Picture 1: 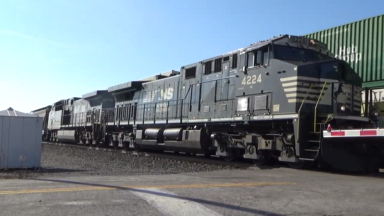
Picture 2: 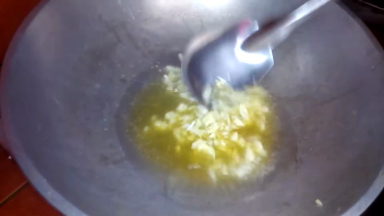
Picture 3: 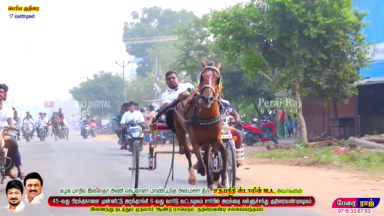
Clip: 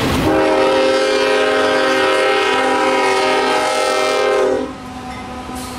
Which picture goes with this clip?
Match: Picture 1